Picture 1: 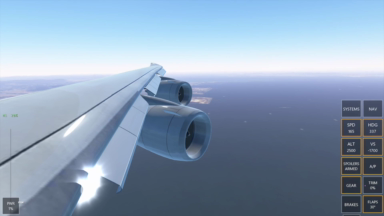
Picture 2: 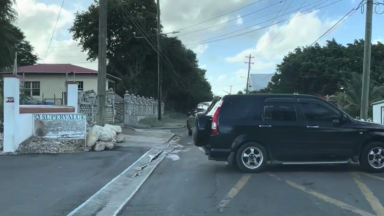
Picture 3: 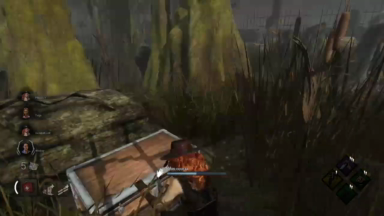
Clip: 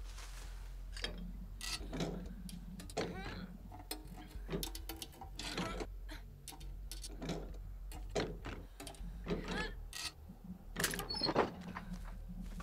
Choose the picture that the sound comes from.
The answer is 3